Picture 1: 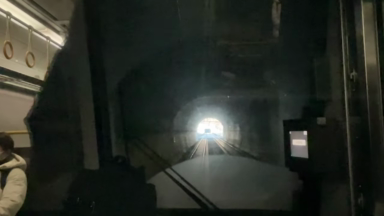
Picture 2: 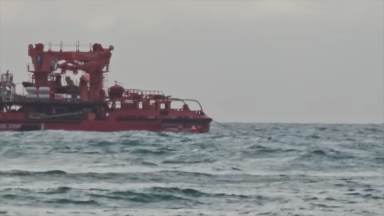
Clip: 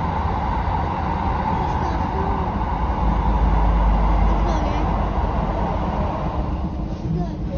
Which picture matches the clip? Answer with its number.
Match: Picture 1